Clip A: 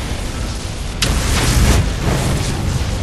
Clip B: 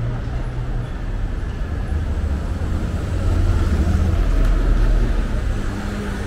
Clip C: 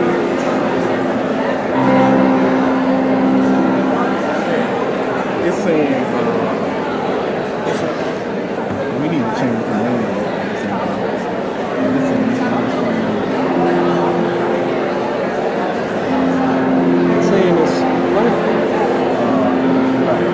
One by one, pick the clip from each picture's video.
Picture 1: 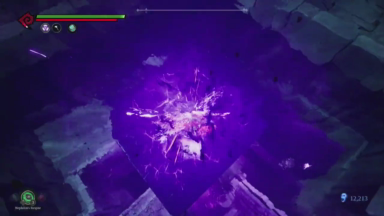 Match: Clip A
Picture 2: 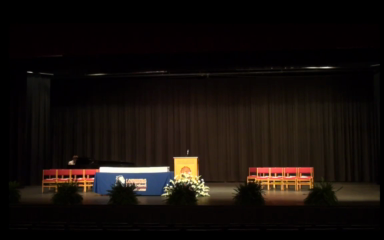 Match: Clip C